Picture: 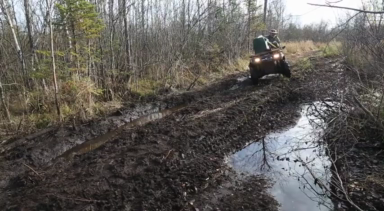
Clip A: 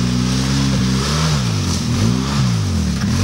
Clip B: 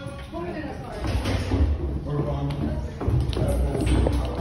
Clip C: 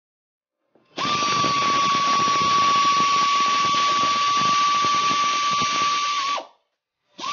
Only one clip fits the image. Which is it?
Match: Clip A